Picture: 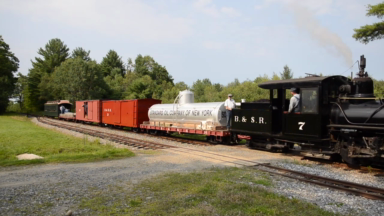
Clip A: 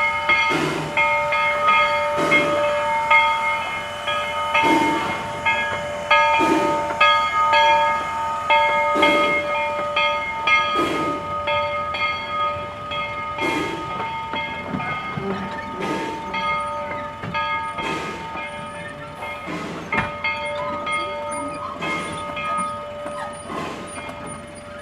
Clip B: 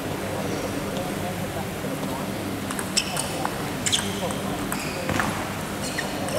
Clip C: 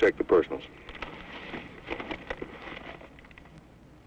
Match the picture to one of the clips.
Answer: A